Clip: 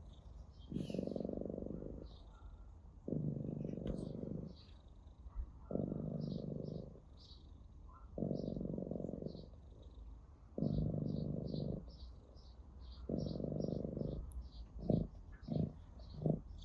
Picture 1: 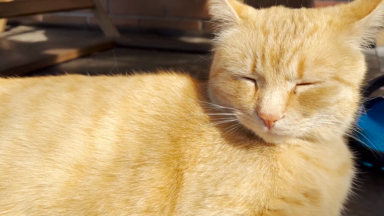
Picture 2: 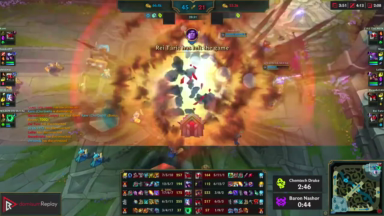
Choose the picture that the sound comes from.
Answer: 1